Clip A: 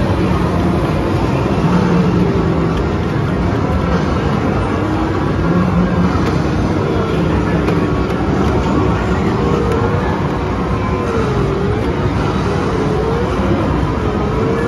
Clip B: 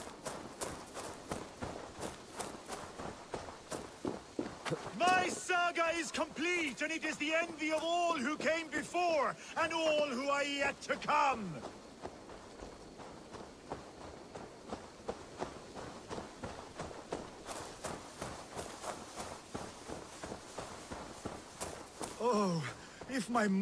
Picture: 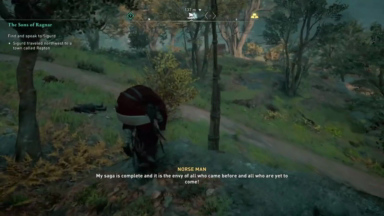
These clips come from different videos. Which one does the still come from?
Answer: B